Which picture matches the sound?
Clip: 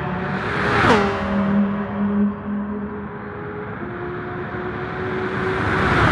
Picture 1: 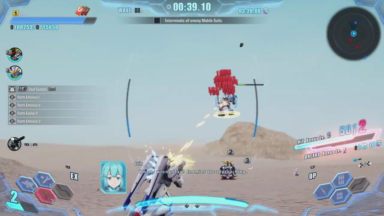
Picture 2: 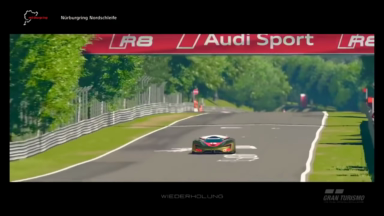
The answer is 2